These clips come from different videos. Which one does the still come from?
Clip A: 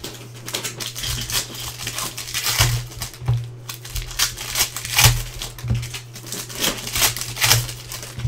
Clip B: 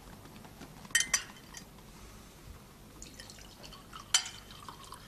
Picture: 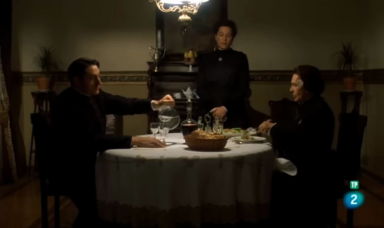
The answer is B